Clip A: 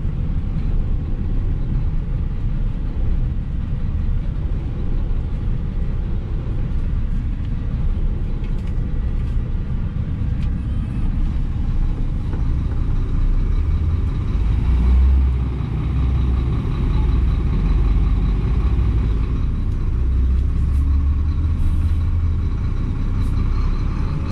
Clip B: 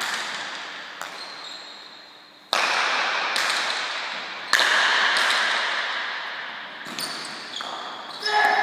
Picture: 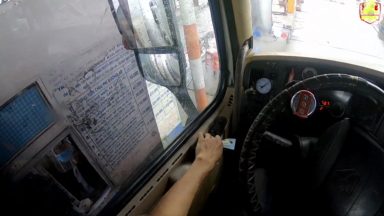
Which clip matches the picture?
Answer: A